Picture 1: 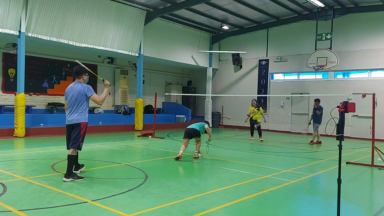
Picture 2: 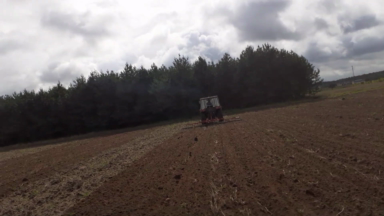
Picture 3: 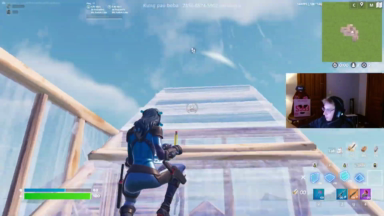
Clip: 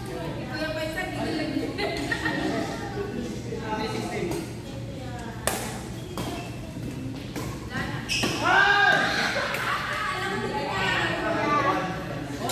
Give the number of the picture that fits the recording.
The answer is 1